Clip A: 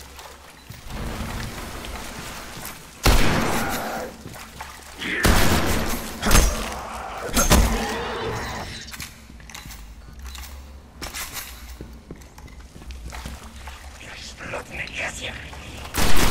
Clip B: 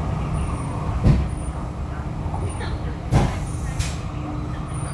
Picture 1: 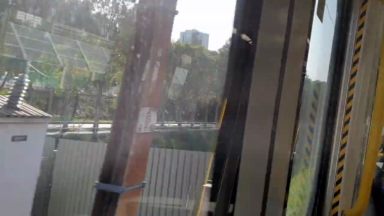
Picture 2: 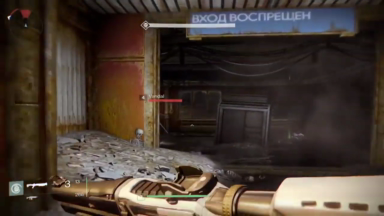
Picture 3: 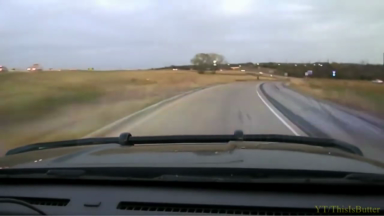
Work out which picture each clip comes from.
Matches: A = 2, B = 1